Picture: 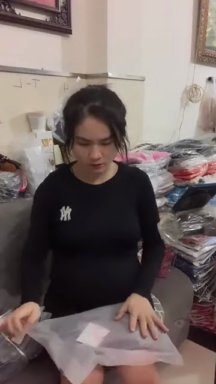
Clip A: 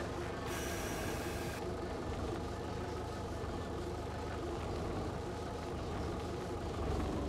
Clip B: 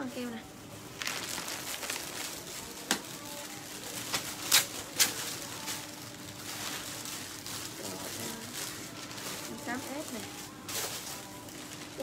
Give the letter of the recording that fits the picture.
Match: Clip B